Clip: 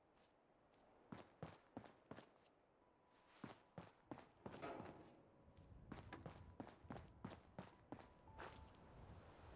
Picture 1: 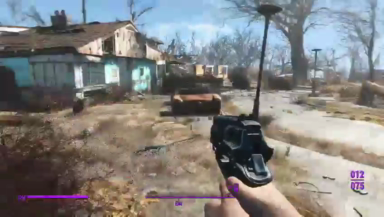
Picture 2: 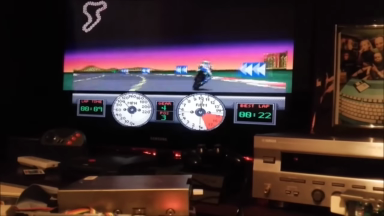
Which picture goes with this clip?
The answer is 1